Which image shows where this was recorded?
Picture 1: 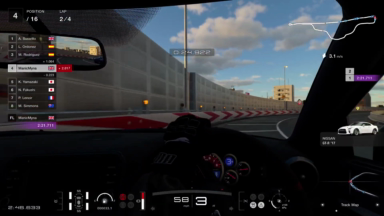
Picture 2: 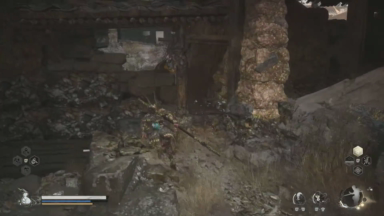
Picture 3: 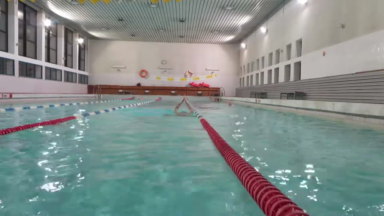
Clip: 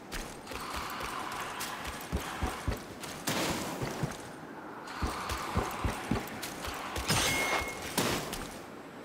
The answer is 2